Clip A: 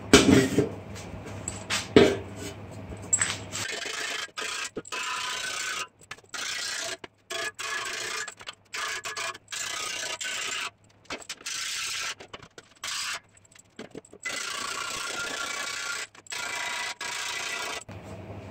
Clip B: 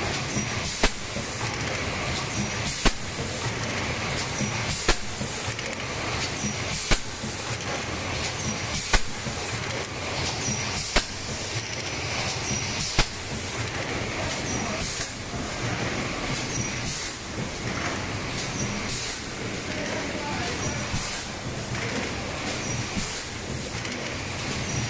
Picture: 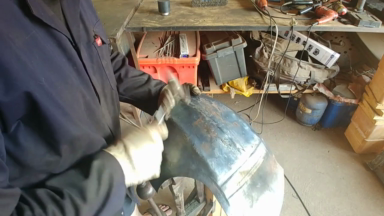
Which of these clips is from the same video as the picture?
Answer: A